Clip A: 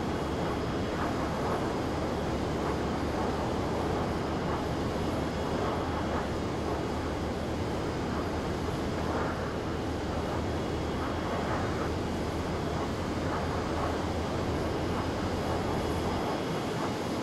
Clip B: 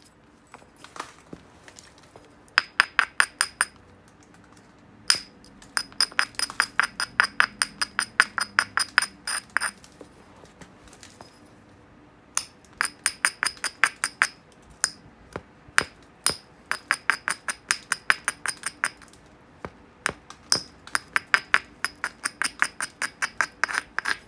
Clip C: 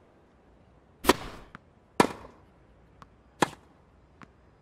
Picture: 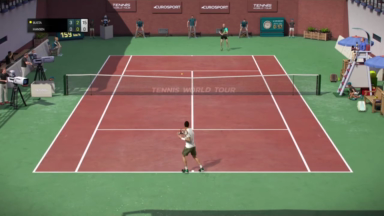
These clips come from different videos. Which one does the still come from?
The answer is C